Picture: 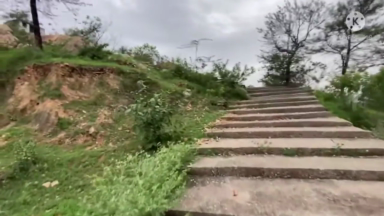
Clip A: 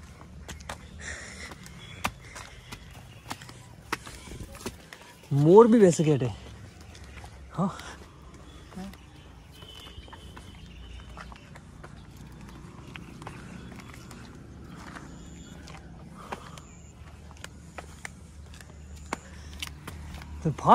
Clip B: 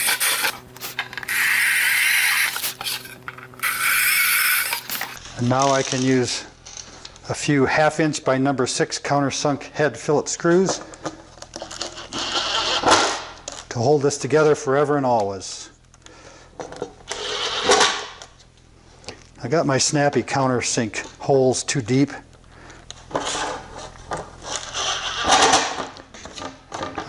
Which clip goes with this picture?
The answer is A